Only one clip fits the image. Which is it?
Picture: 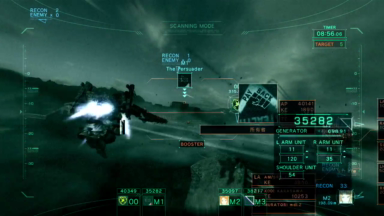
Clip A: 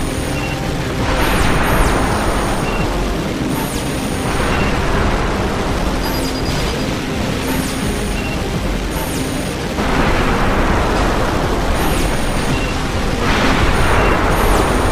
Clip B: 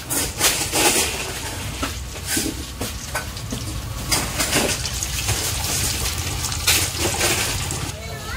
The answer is A